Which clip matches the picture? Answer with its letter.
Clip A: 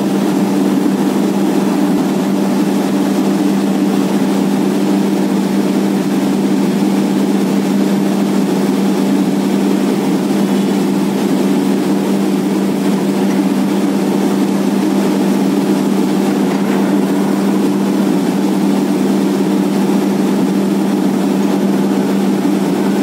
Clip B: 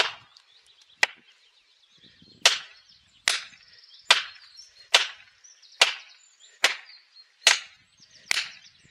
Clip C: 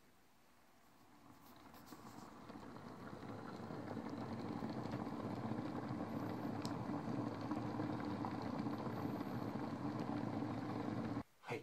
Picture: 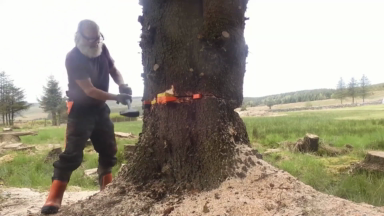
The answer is B